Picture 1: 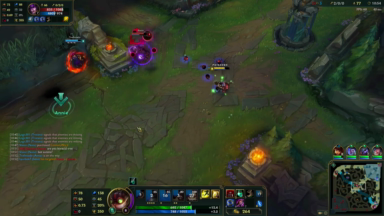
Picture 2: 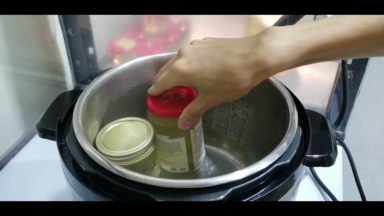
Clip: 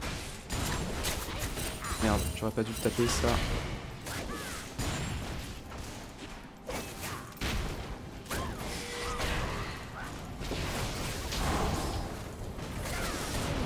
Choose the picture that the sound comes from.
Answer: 1